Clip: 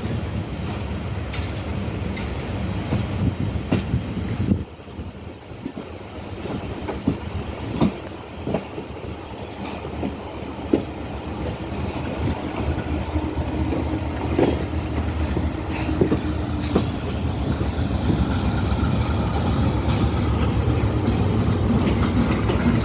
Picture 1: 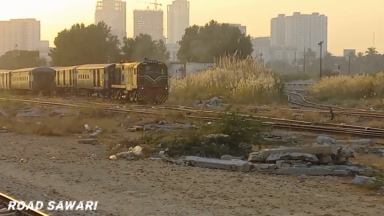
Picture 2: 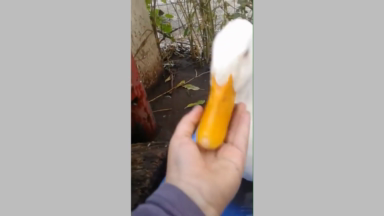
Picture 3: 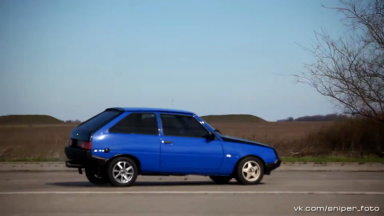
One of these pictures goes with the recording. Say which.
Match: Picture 1